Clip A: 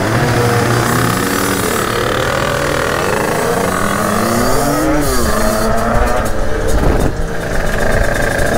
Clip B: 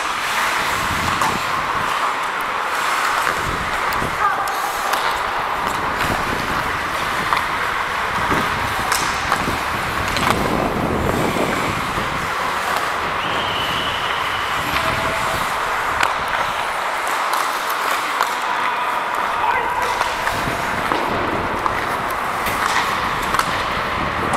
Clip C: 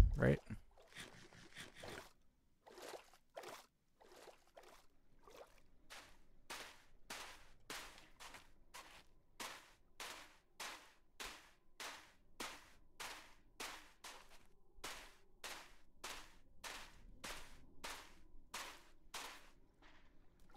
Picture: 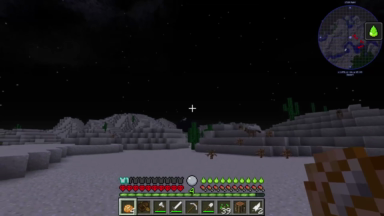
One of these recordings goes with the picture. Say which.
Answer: C